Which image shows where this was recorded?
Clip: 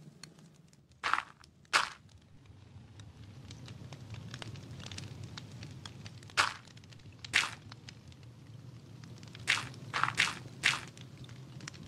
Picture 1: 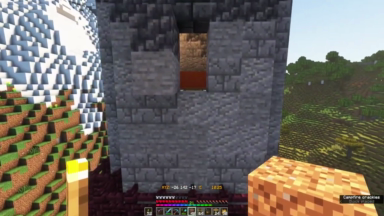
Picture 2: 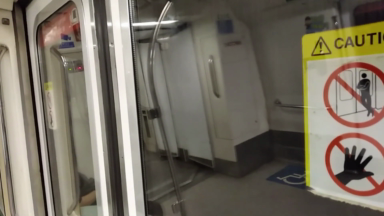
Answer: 1